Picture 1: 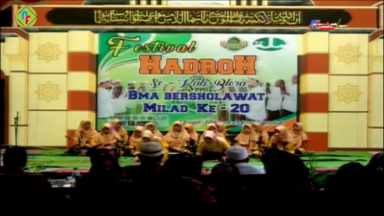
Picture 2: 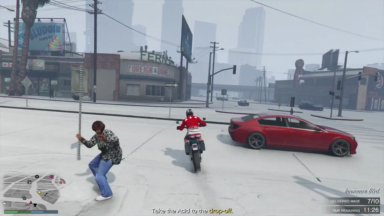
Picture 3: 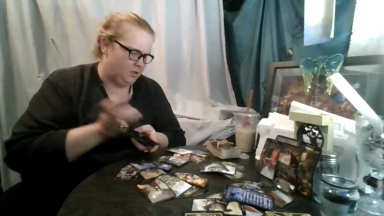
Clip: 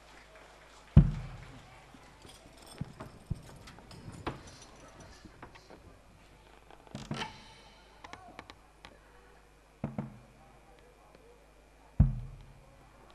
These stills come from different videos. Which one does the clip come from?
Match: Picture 1